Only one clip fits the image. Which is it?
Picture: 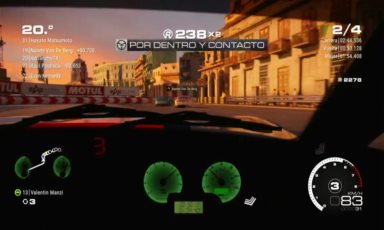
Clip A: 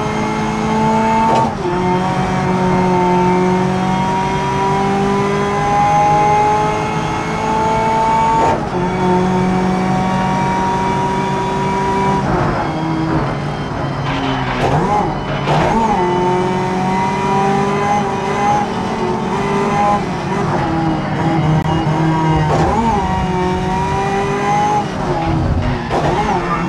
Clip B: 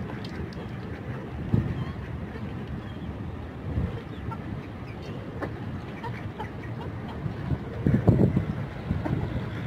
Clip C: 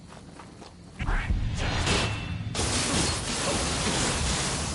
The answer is A